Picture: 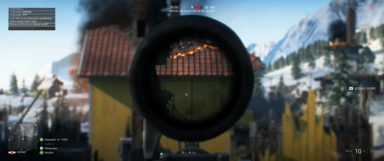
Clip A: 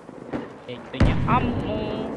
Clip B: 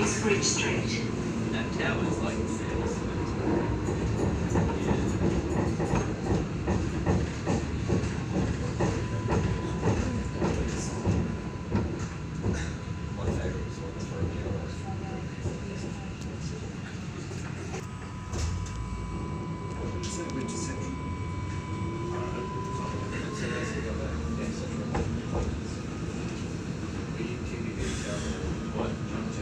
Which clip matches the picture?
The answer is A